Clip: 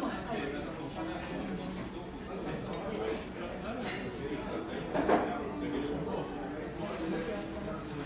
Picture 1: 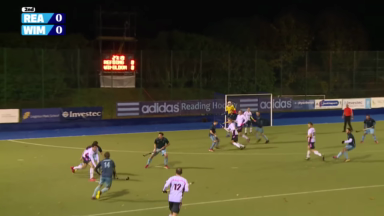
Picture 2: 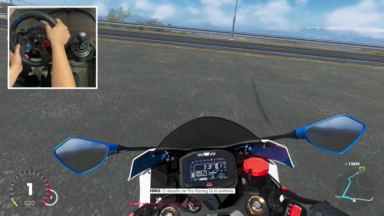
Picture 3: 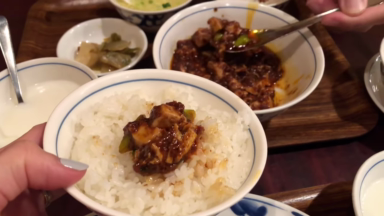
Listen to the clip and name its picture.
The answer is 3